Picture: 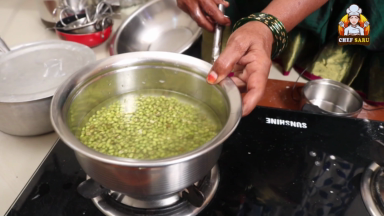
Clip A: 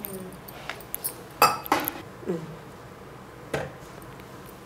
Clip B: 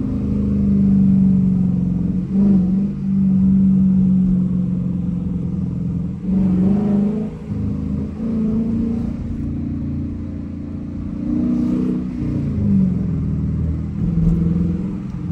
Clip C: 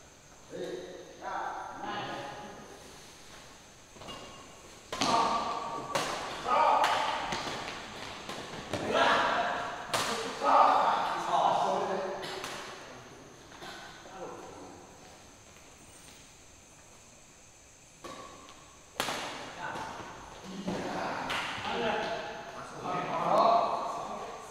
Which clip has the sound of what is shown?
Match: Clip A